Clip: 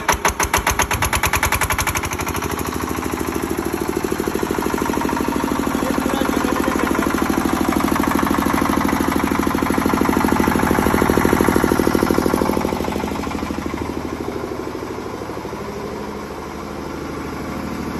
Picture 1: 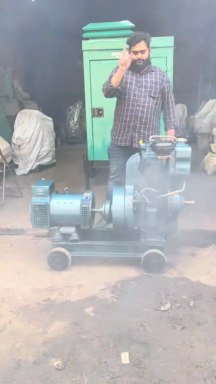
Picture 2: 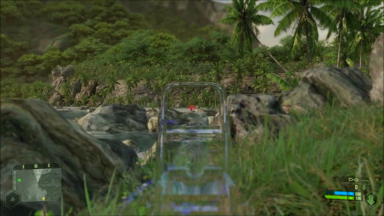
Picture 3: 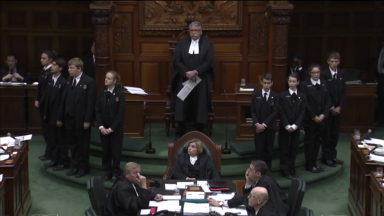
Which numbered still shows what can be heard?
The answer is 1